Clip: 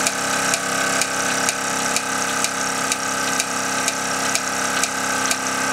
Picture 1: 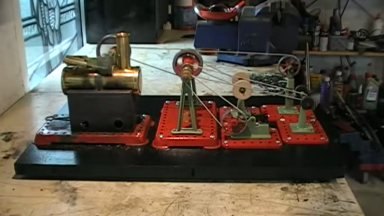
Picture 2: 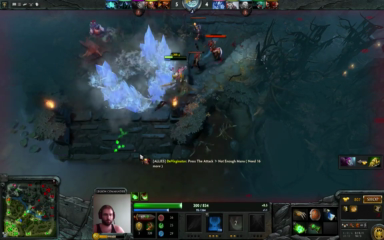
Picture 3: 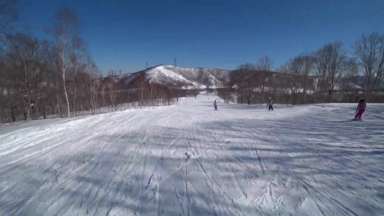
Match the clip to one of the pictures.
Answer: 1